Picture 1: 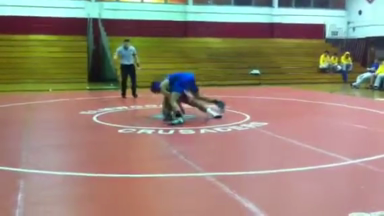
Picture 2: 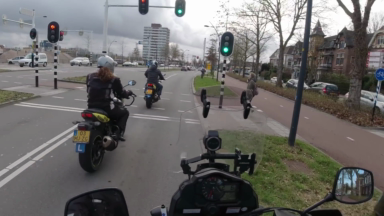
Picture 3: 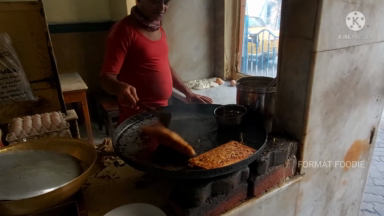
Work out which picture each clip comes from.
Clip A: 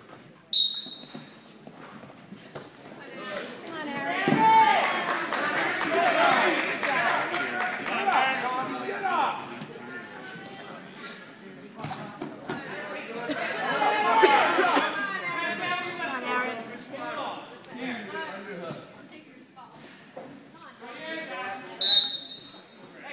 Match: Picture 1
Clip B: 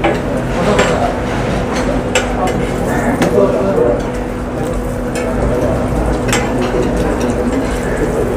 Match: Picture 3